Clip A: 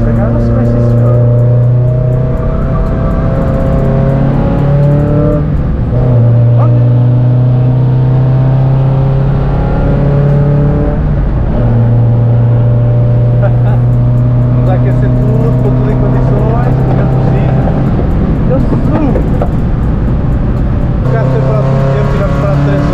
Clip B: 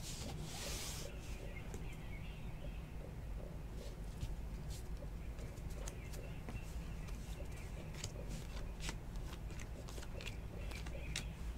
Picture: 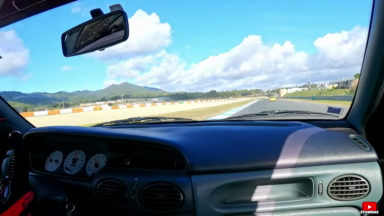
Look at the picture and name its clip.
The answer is A